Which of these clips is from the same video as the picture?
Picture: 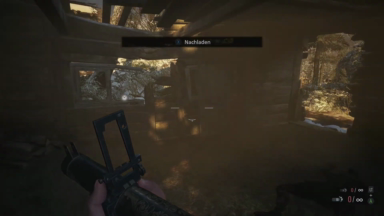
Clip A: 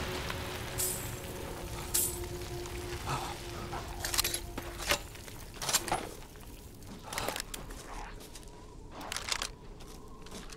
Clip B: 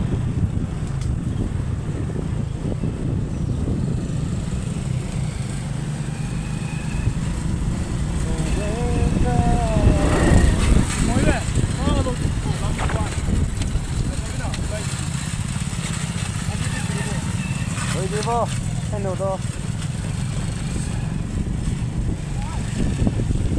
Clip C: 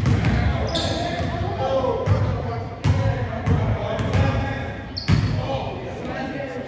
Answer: A